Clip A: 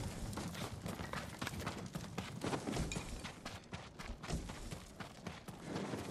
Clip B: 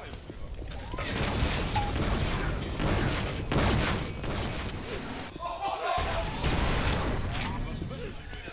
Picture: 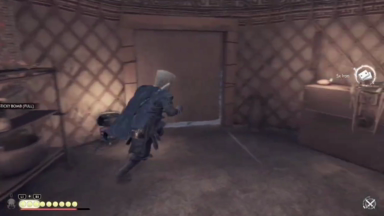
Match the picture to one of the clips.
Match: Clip A